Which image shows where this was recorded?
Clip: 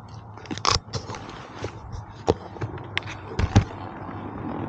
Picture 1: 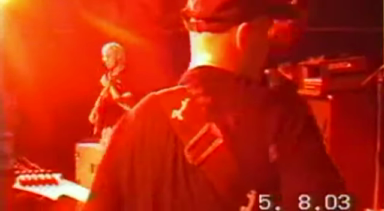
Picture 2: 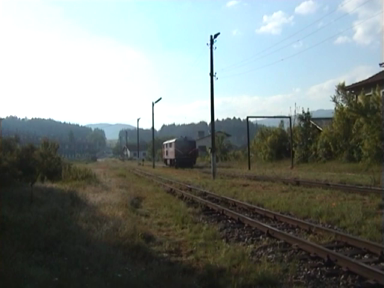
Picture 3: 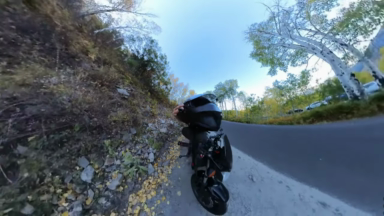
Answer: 3